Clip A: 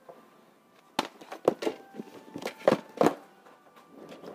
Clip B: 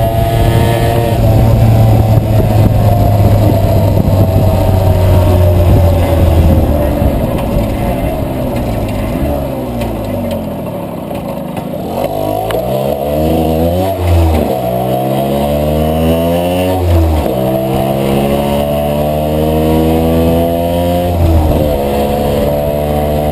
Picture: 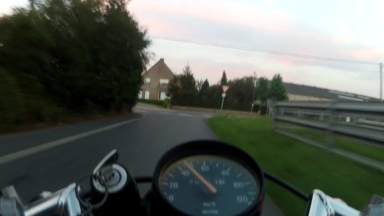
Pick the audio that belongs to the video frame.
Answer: B